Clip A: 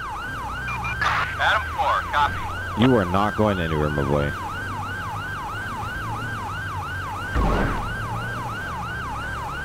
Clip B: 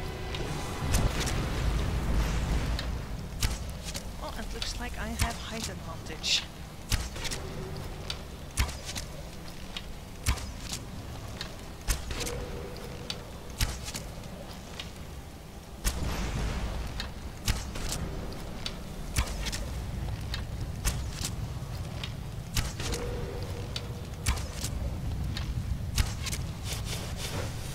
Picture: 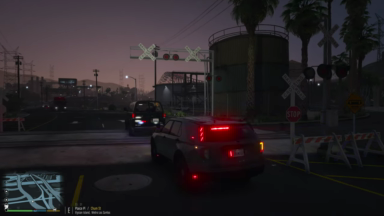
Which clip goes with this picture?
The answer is A